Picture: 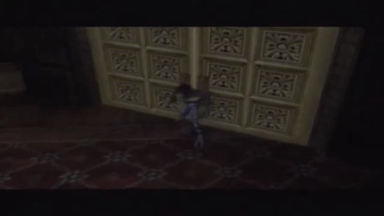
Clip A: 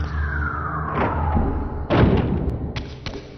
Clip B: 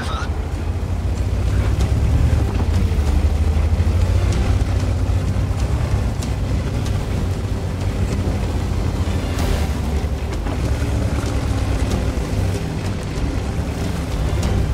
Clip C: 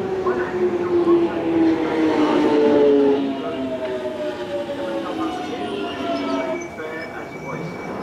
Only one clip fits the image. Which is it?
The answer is A